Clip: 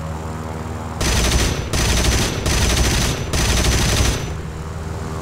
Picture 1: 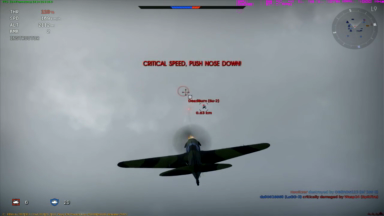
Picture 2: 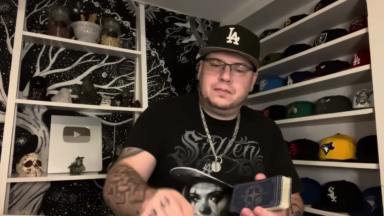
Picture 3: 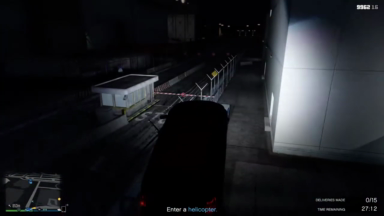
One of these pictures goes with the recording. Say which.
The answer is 1